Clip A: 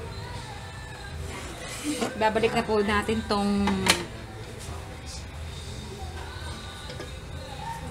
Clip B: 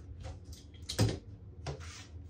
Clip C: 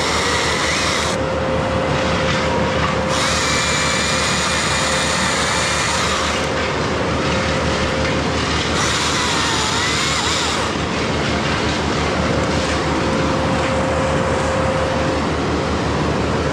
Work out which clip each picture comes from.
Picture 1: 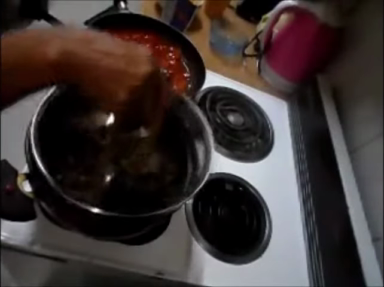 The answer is A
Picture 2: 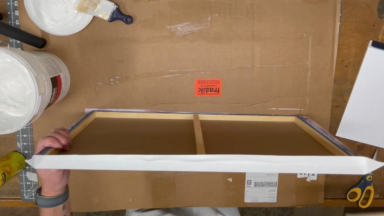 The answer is B